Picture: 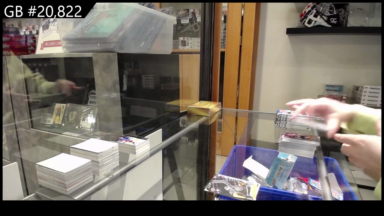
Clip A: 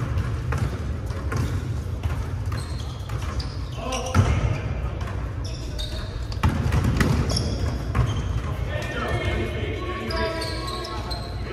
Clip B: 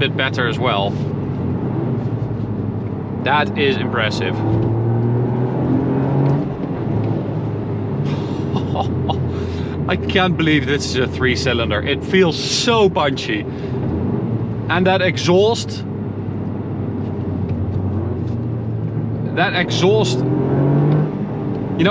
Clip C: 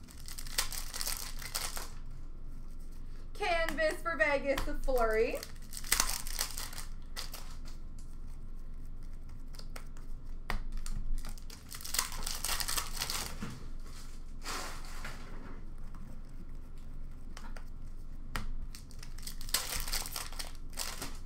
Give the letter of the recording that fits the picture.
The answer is C